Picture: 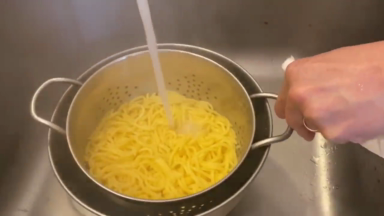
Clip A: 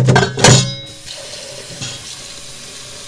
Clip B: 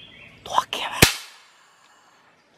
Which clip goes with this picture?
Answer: A